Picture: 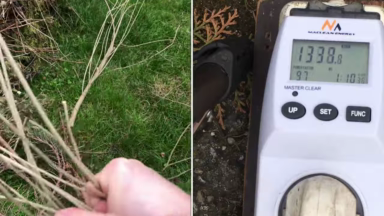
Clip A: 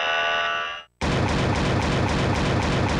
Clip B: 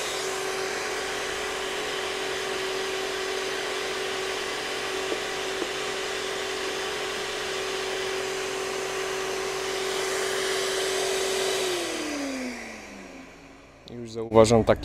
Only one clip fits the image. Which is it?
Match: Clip B